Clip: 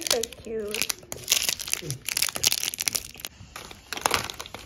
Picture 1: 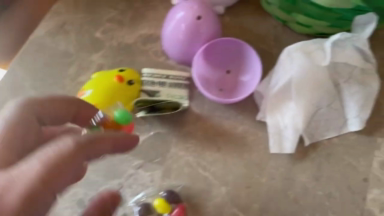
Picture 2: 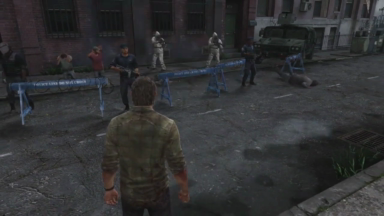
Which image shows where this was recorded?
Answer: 1